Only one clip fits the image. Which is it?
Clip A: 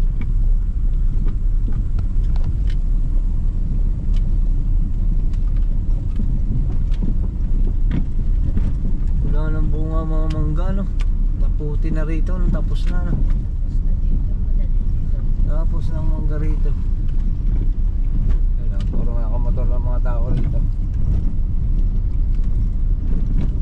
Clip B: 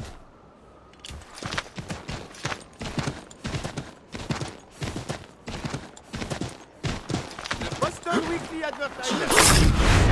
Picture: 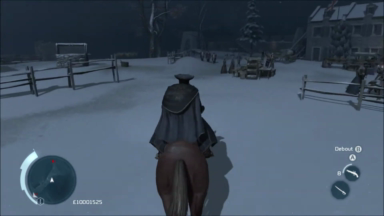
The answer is B